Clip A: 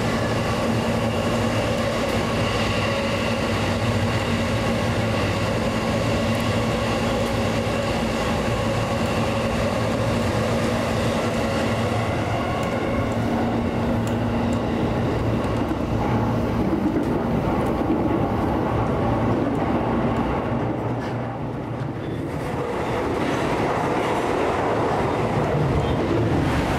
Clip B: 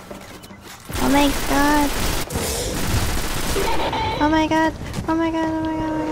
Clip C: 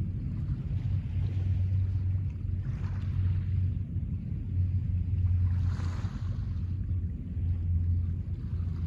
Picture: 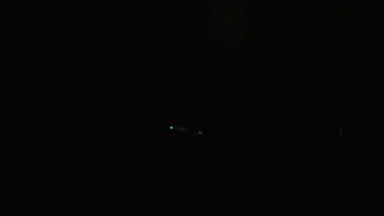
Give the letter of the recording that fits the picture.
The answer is A